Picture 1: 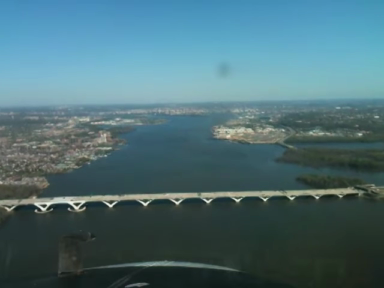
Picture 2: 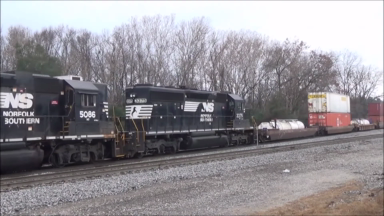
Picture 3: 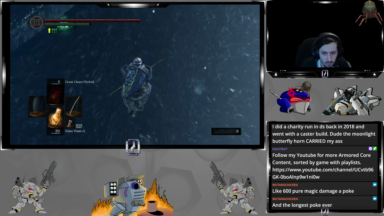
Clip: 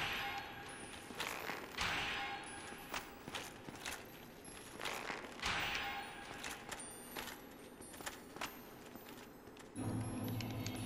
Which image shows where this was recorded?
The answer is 3